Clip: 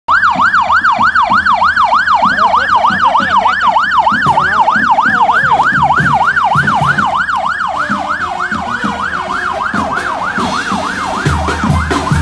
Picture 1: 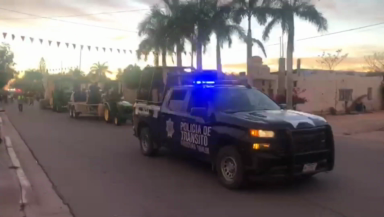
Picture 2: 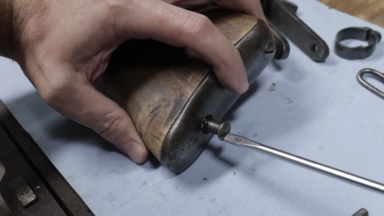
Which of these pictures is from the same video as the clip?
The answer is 1